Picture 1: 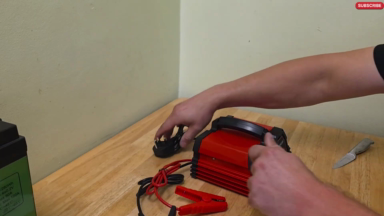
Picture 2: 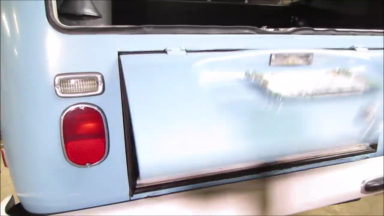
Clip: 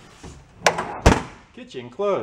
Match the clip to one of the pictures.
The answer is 2